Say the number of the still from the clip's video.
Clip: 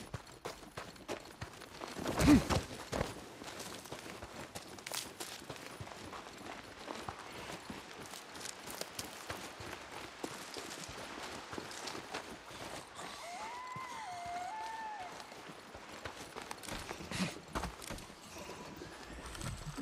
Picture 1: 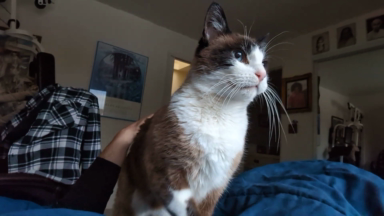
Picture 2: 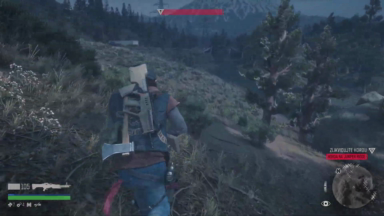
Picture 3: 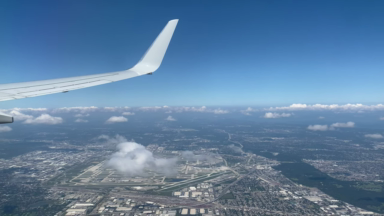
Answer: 2